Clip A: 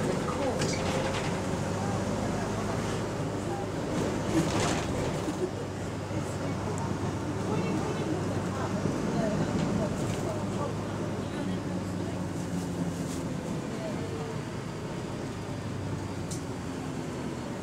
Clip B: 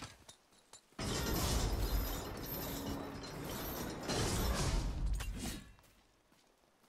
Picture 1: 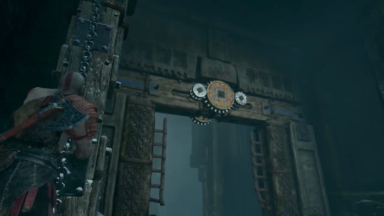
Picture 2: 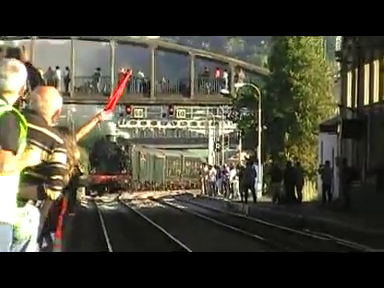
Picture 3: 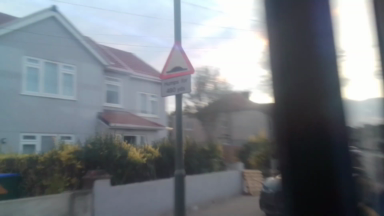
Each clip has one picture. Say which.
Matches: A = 3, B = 1